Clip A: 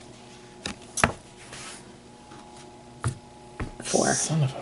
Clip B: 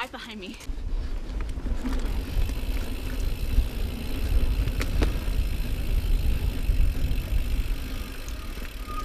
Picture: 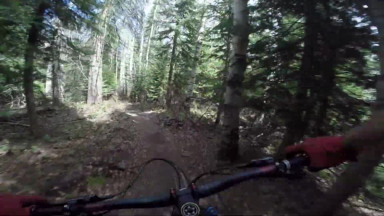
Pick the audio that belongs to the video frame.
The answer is B